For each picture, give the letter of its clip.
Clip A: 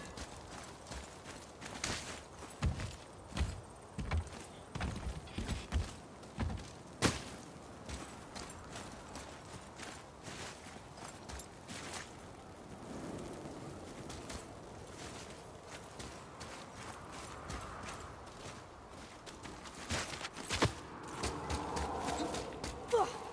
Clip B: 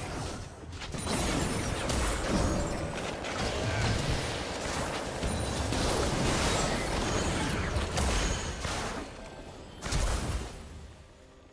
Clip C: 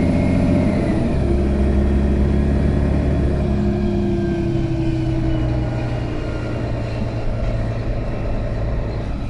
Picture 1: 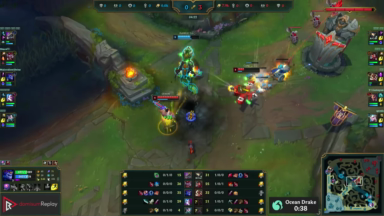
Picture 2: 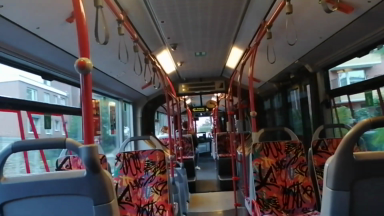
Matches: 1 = B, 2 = C